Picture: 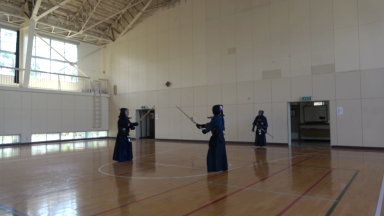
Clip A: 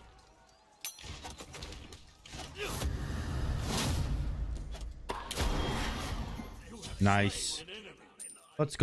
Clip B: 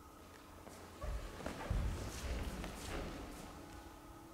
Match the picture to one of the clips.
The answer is B